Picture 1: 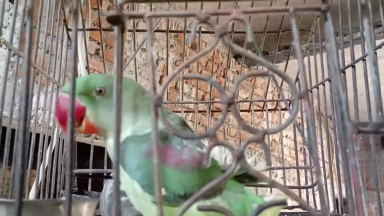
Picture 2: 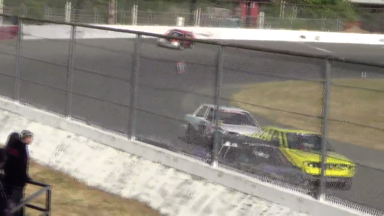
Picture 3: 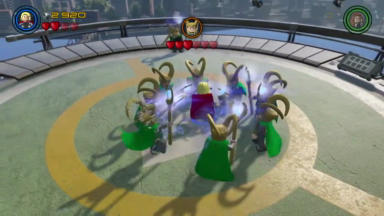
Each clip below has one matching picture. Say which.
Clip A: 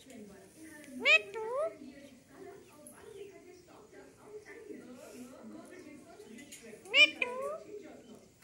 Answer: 1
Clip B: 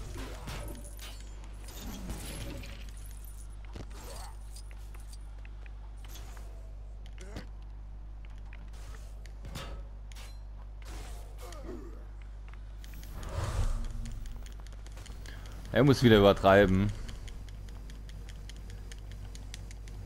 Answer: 3